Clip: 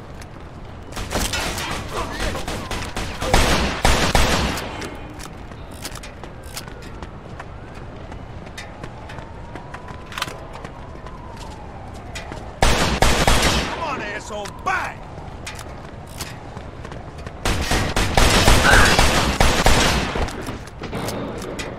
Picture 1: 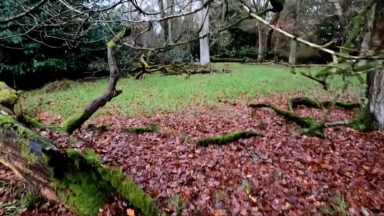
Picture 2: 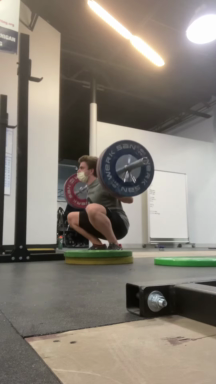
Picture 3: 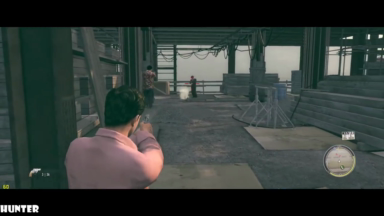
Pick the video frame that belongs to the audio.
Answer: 3